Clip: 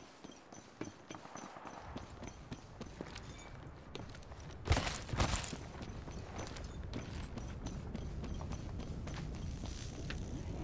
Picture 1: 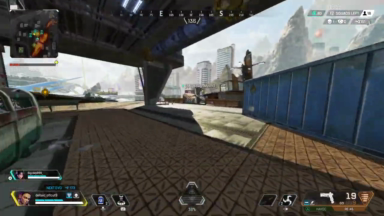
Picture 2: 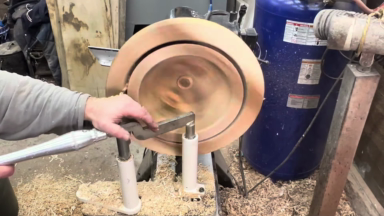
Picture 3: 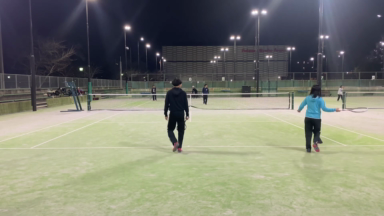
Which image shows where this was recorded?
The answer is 1